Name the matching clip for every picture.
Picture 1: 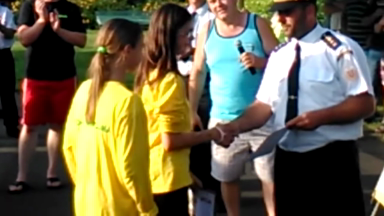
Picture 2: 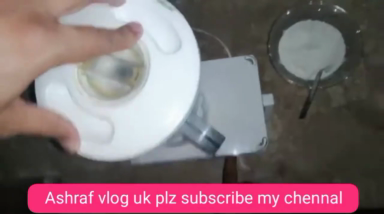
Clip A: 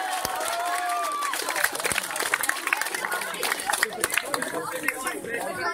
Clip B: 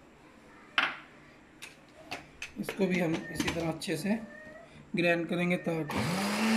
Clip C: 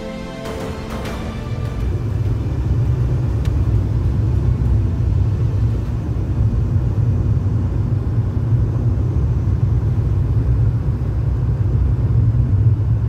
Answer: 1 A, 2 B